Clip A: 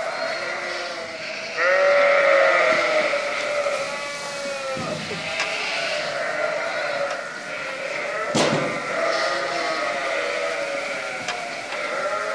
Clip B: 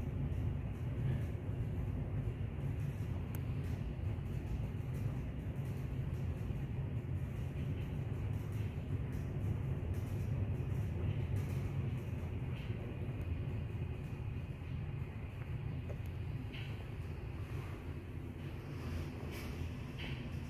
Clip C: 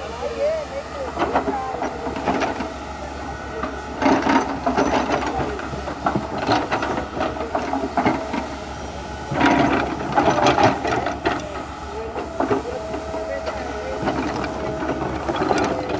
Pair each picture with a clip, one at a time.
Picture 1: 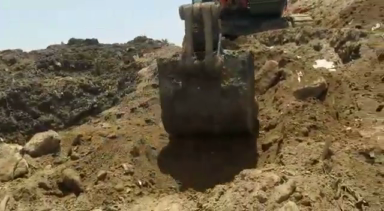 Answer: C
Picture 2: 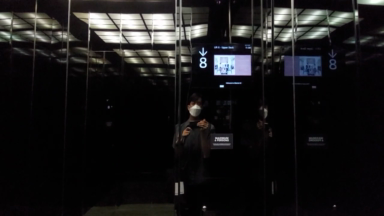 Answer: B